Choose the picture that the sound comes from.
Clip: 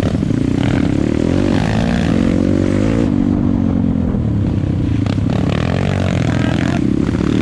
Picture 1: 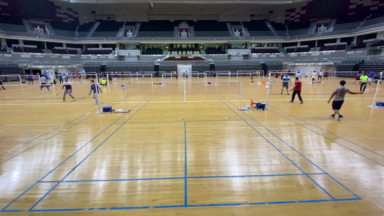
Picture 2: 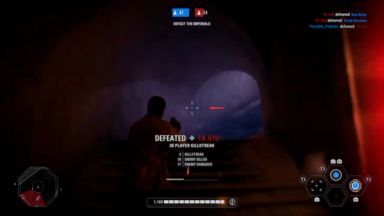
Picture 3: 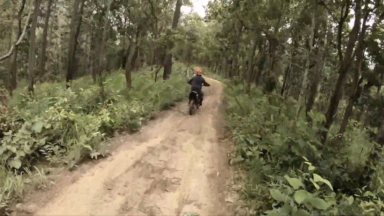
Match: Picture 3